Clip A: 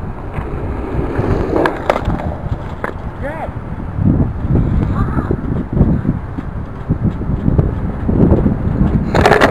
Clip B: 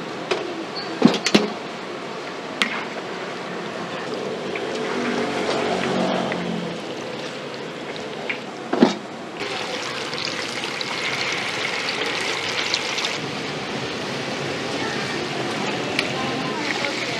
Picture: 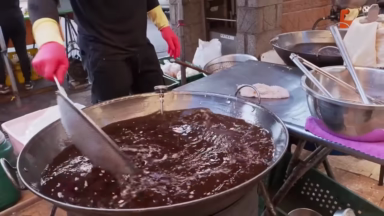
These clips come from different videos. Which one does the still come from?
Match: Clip B